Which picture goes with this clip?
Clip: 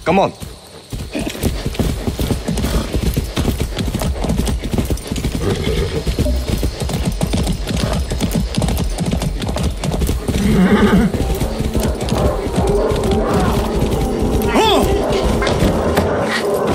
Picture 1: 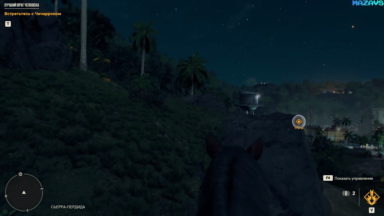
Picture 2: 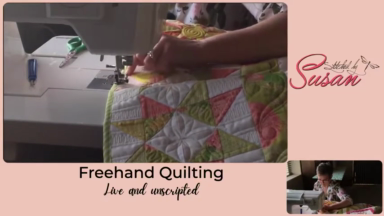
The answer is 1